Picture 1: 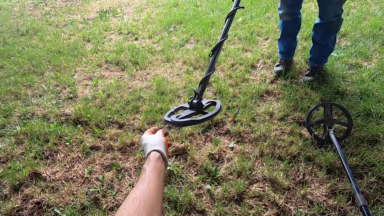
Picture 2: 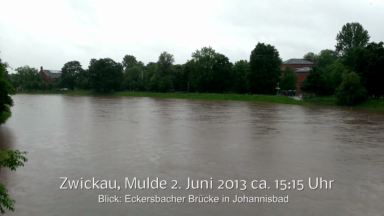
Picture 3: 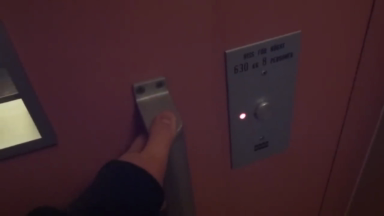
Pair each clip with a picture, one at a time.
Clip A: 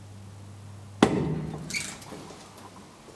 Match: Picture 3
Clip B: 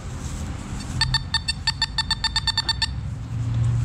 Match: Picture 1